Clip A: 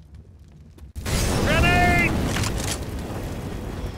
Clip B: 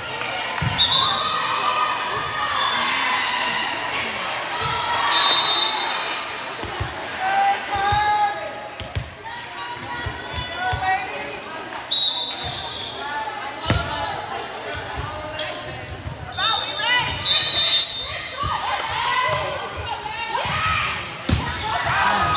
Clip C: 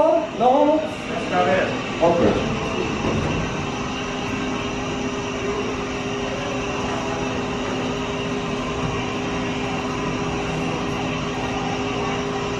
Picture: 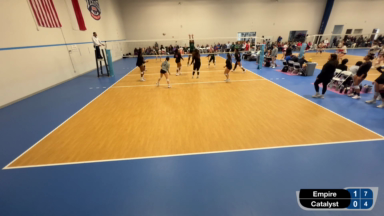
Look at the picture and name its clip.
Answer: B